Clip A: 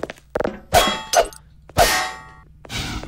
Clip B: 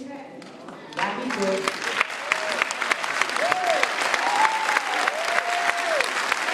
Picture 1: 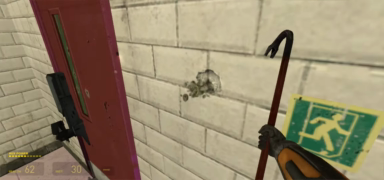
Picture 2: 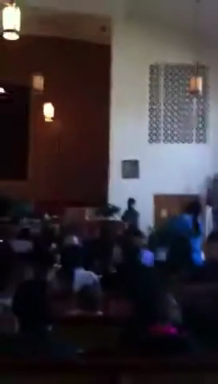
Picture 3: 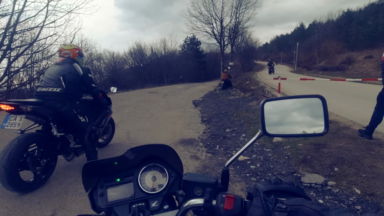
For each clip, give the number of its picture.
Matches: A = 1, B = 2